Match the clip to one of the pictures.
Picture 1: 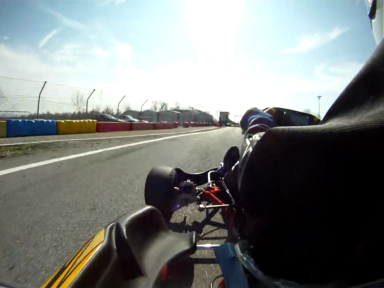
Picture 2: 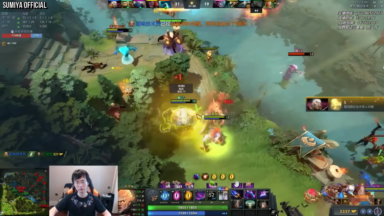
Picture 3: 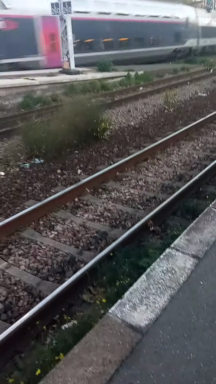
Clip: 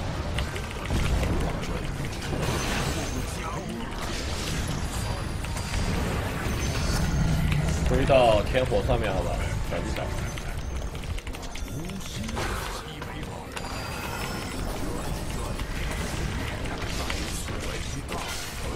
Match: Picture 2